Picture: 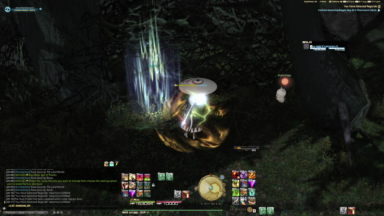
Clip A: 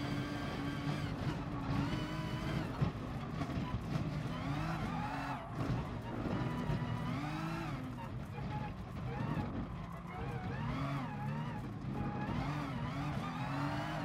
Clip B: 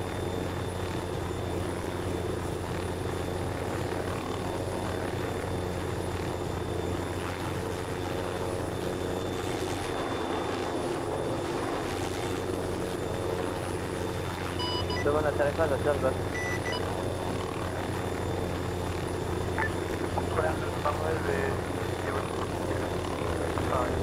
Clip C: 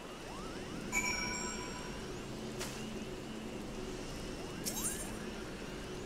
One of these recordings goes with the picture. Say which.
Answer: C